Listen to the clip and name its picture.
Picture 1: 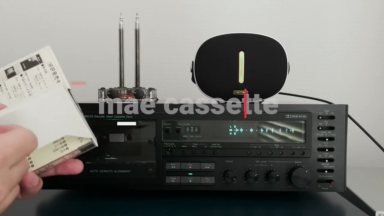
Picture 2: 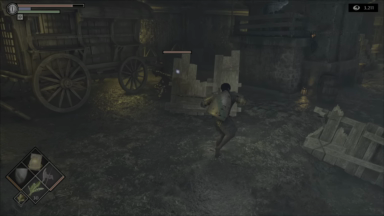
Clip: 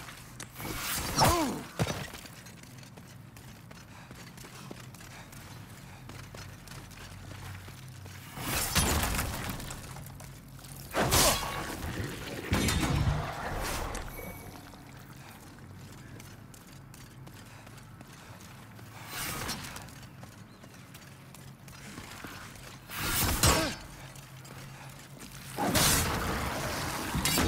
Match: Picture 2